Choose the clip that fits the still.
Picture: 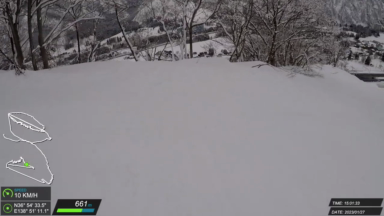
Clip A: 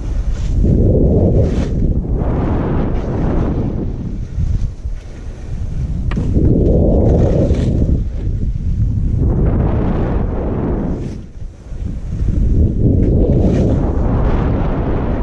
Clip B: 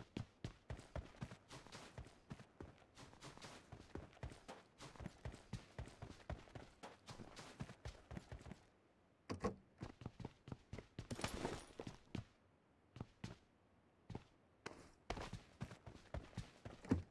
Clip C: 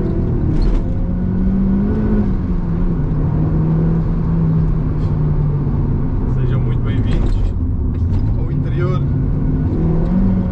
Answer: A